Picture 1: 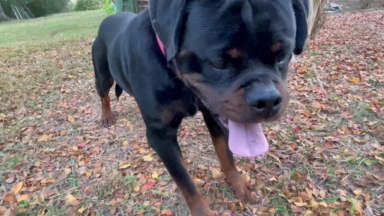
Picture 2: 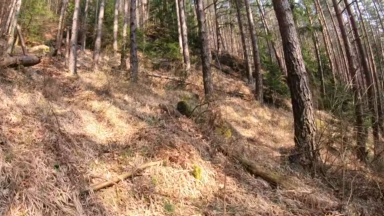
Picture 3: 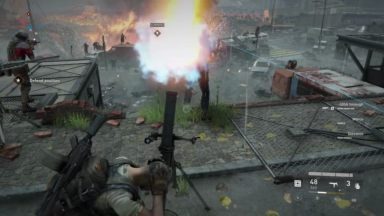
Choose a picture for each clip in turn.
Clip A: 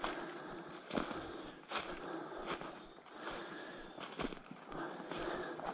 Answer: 2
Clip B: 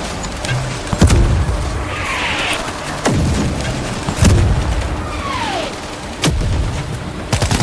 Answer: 3